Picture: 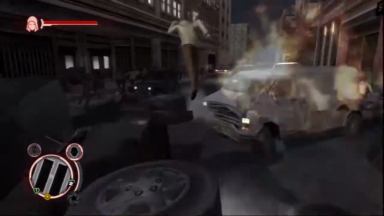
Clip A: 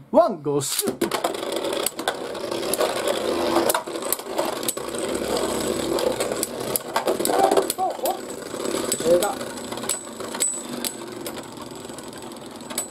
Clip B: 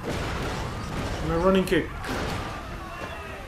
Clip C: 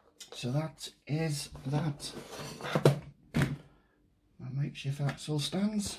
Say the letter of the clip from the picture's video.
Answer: B